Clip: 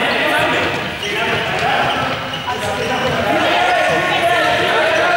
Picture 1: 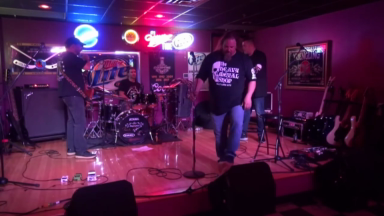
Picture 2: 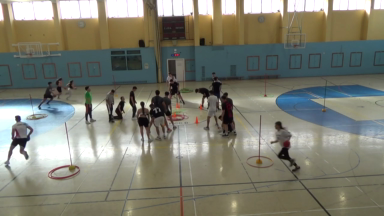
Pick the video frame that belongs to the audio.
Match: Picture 2